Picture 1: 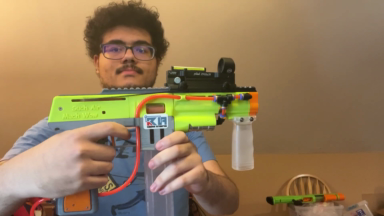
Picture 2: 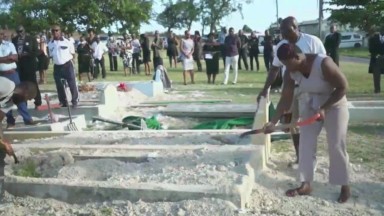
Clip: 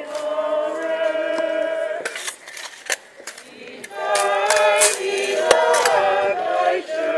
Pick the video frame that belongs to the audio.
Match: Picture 2